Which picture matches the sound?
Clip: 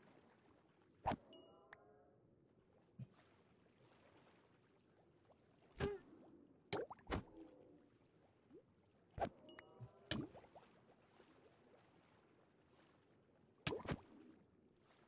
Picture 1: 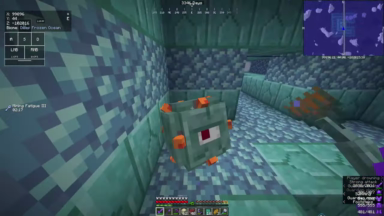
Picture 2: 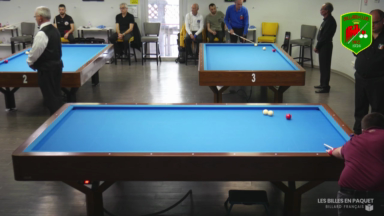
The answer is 1